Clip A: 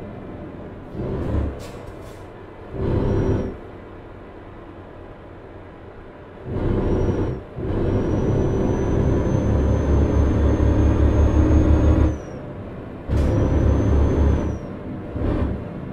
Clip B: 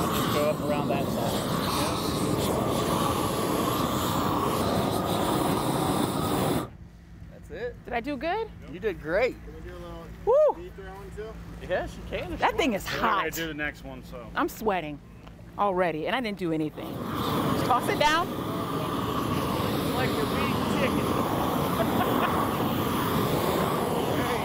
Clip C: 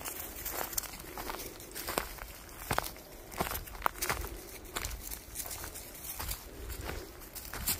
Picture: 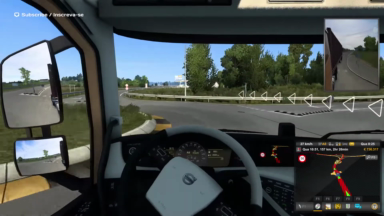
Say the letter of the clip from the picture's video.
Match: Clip A